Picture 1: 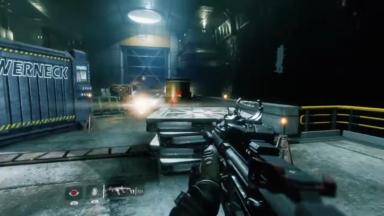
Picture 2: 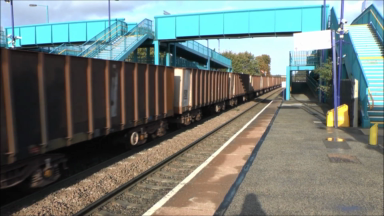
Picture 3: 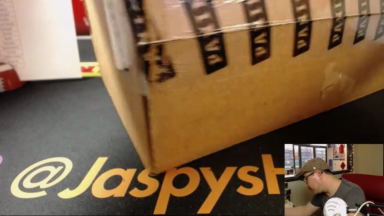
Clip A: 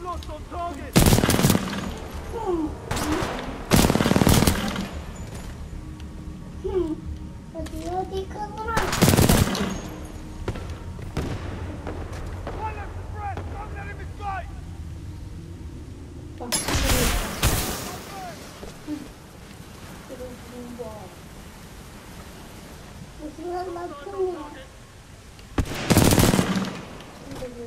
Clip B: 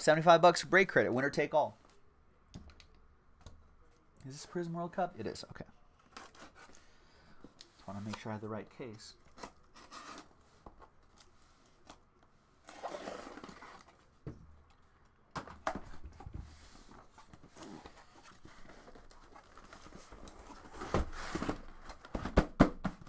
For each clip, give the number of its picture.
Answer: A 1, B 3